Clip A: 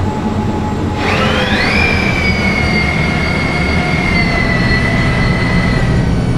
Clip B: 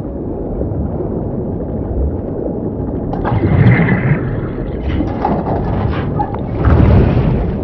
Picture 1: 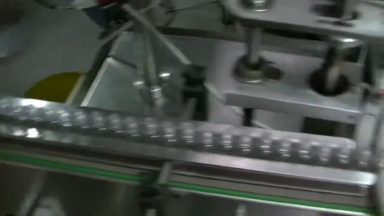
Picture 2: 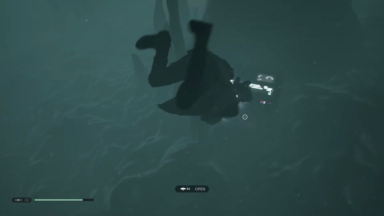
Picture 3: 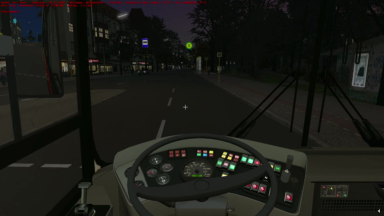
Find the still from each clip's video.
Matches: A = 3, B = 2